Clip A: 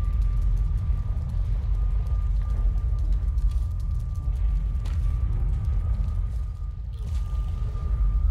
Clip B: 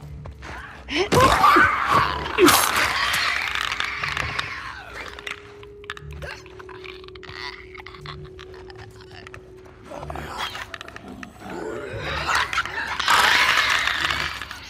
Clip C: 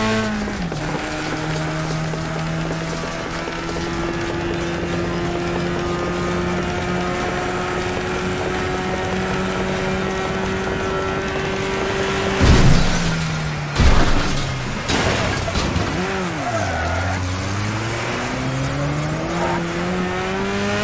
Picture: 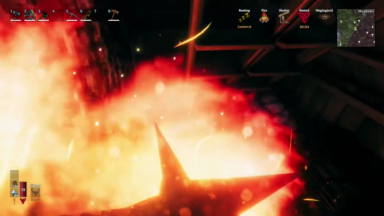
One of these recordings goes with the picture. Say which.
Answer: A